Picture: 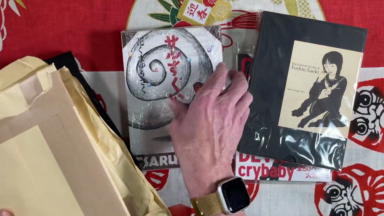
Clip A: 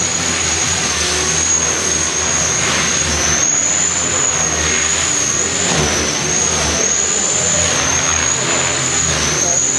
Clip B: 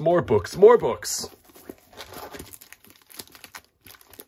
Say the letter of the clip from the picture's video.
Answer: B